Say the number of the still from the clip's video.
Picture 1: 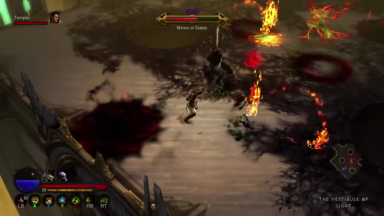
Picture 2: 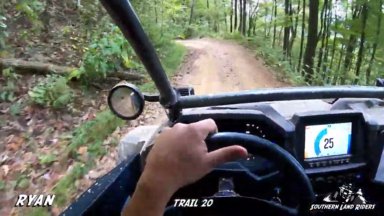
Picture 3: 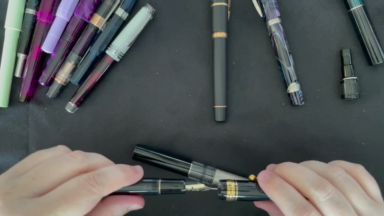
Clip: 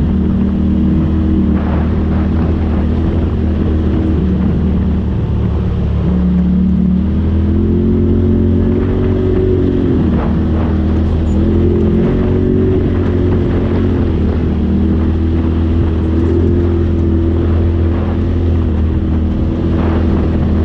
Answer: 2